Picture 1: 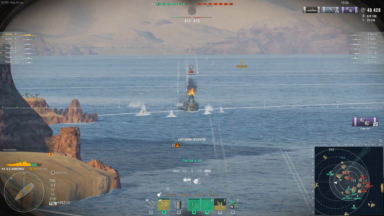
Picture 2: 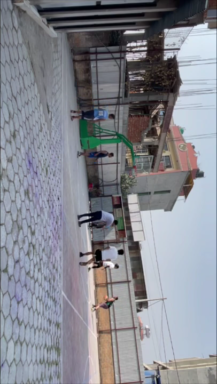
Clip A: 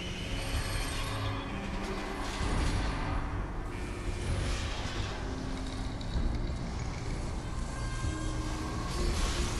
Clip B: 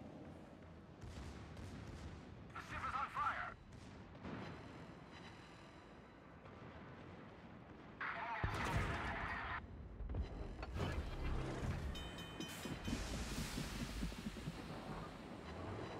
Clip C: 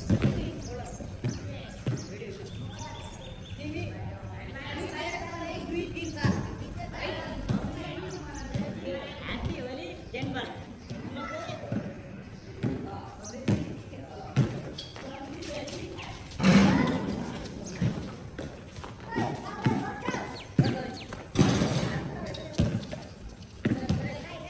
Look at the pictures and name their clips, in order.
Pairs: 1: B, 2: C